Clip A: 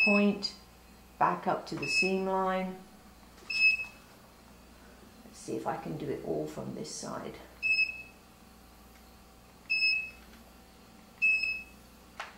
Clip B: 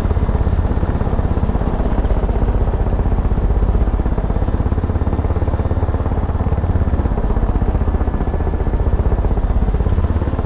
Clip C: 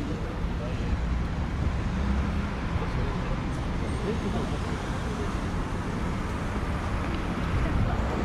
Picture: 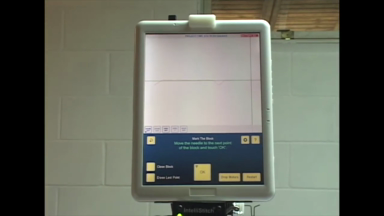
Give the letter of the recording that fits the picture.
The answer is A